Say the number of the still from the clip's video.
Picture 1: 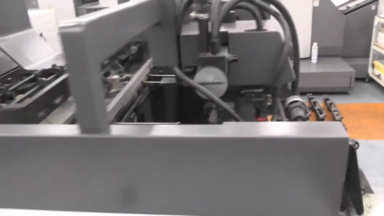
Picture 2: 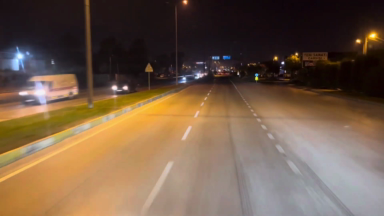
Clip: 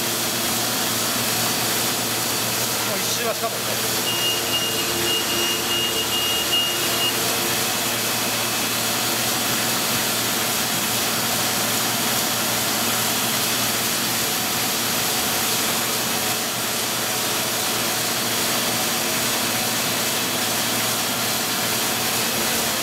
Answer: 1